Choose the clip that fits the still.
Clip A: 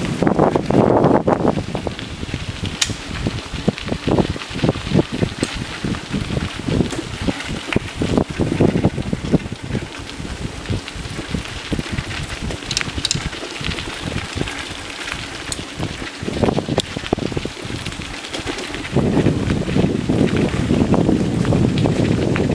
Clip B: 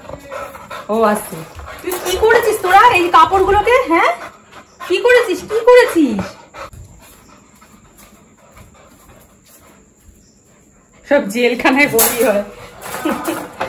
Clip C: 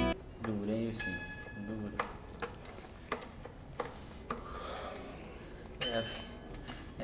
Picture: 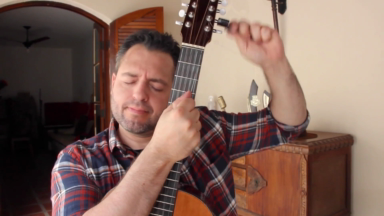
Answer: C